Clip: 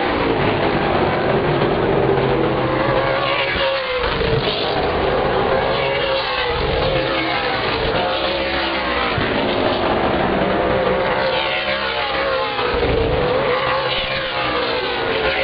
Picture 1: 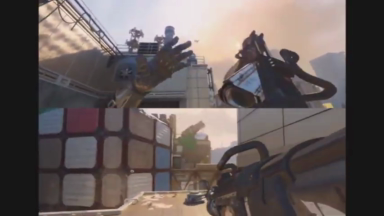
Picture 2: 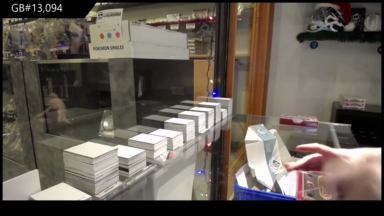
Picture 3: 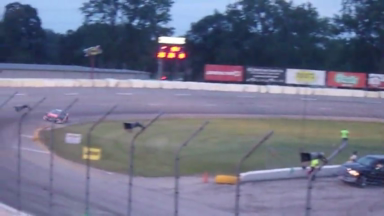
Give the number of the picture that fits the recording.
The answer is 3